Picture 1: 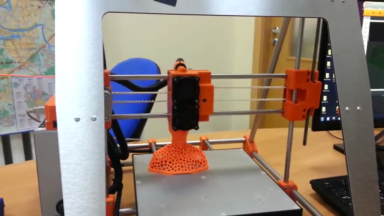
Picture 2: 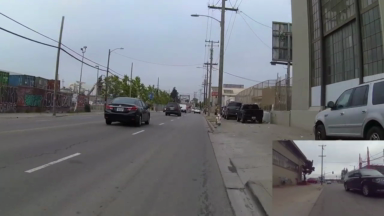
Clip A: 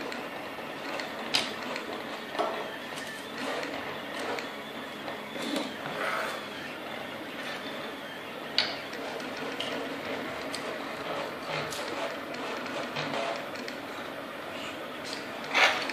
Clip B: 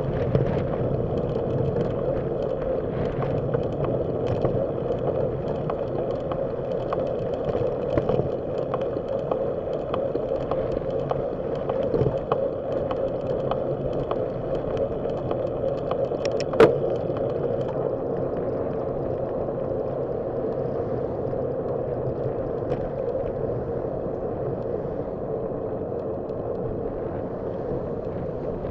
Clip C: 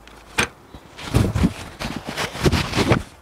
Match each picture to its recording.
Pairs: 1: A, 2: B